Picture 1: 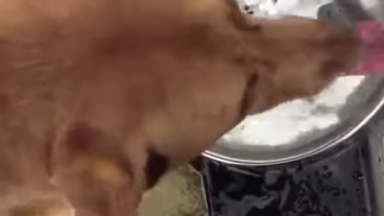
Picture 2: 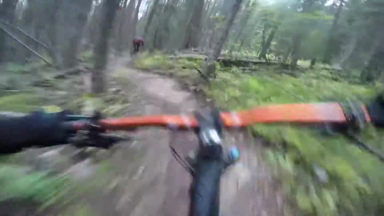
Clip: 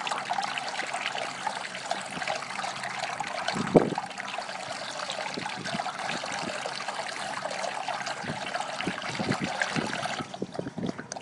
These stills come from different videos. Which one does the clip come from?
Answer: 1